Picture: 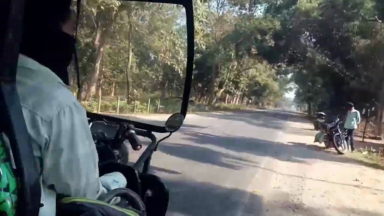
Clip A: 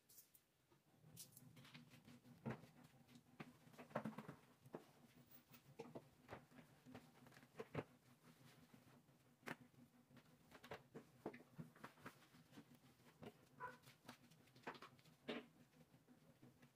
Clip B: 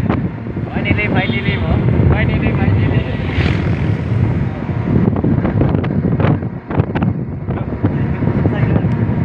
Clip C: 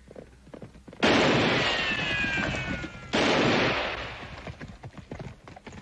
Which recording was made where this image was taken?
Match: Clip B